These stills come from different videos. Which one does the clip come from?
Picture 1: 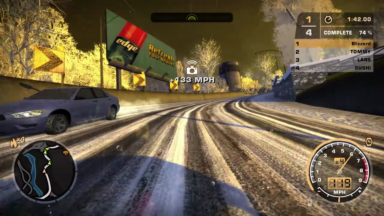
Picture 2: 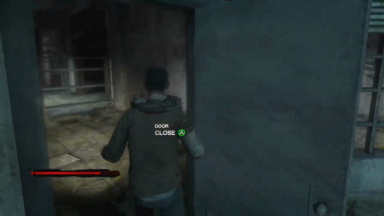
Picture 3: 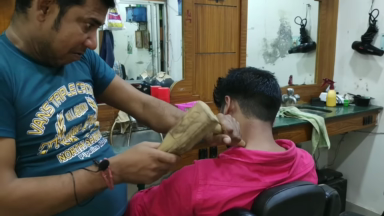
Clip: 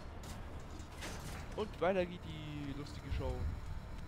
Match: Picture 2